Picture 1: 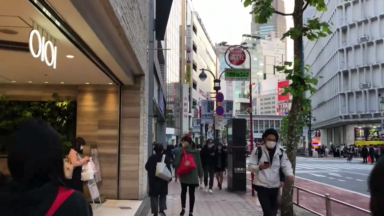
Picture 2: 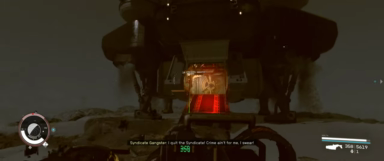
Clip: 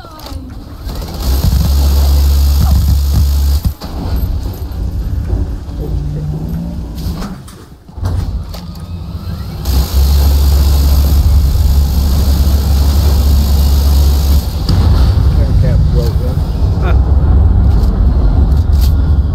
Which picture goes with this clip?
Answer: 2